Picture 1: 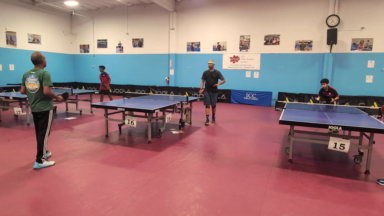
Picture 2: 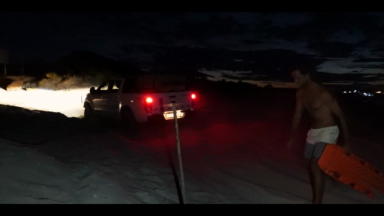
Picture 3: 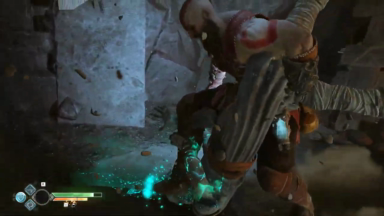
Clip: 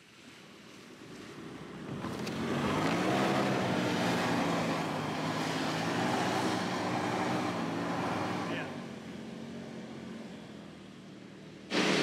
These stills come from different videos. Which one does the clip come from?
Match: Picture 2